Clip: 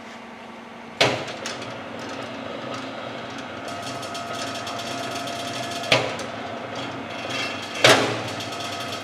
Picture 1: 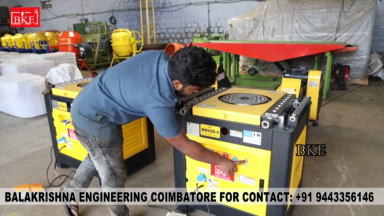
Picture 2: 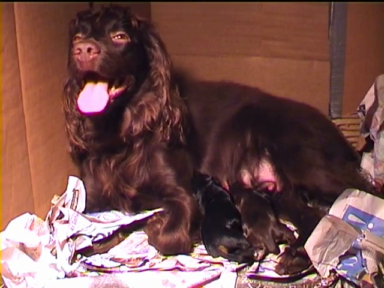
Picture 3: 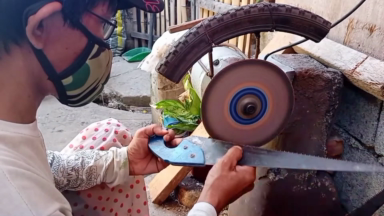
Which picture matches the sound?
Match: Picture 1